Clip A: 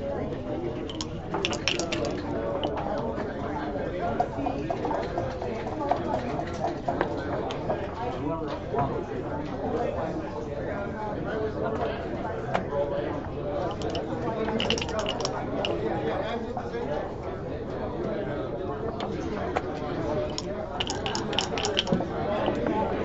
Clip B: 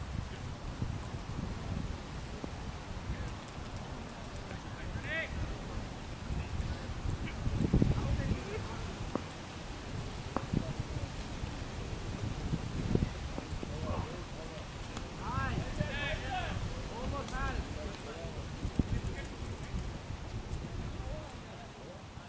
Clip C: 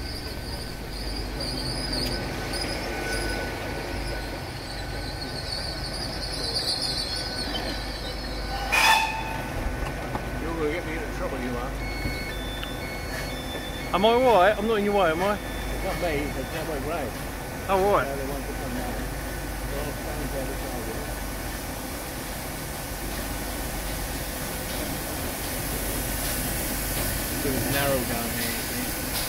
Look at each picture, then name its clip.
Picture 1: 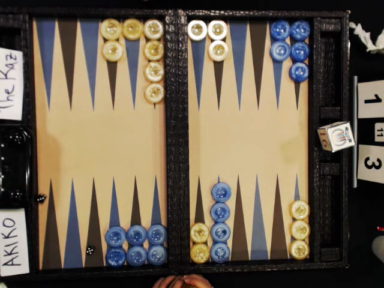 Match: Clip A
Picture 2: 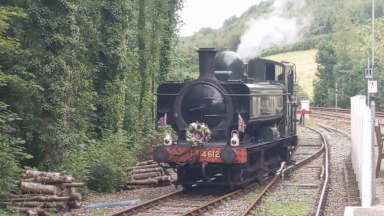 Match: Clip C